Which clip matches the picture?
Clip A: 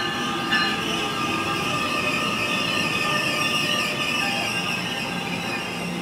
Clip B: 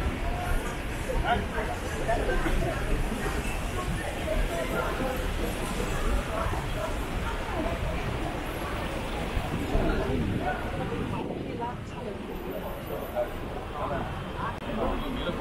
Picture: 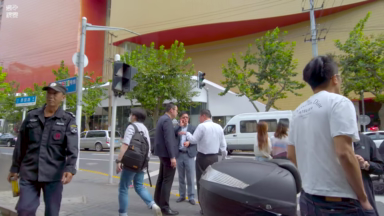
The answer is B